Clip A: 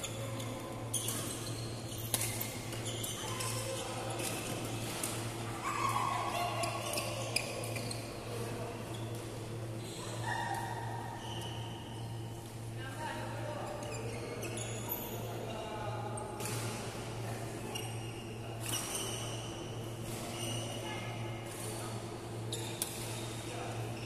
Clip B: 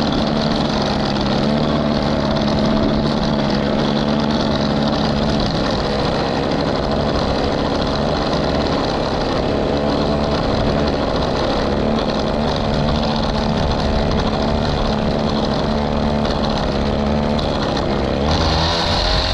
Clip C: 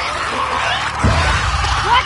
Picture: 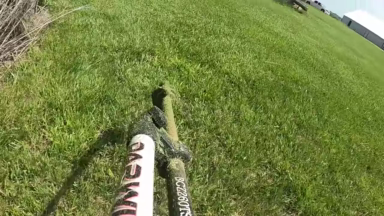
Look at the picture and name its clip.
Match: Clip B